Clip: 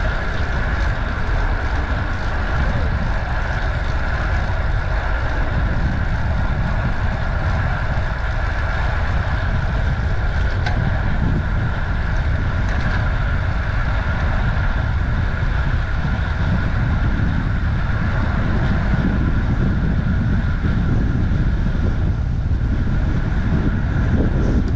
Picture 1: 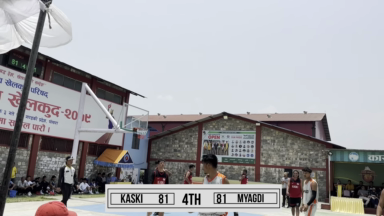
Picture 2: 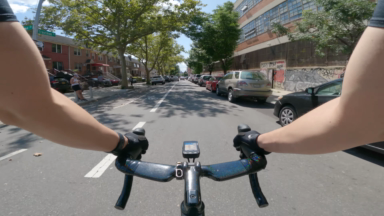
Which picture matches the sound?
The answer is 2